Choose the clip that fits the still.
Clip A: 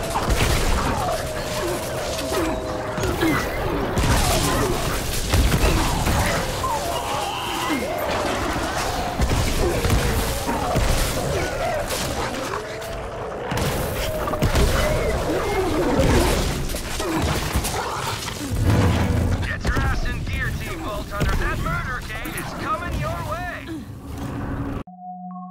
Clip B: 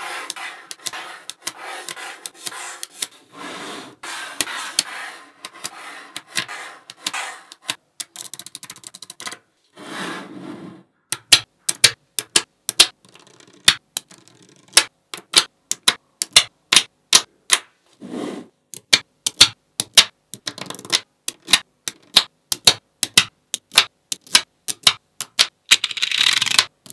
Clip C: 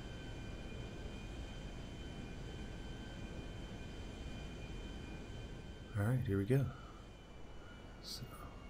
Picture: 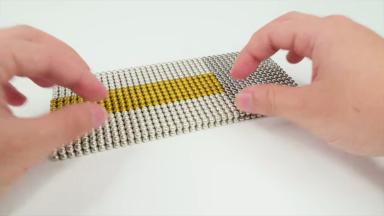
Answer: B